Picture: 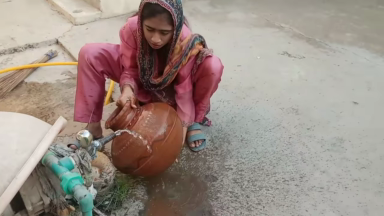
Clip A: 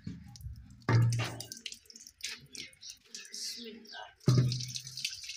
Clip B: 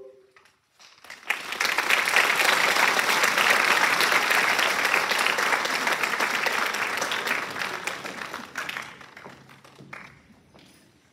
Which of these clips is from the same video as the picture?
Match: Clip A